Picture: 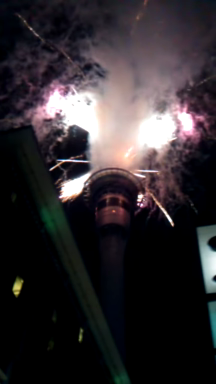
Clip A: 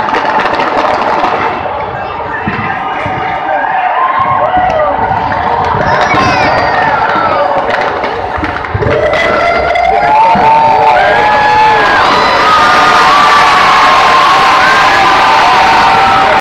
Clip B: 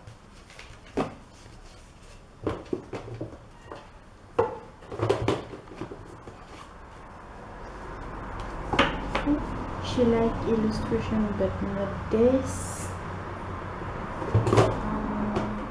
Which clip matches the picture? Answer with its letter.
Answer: A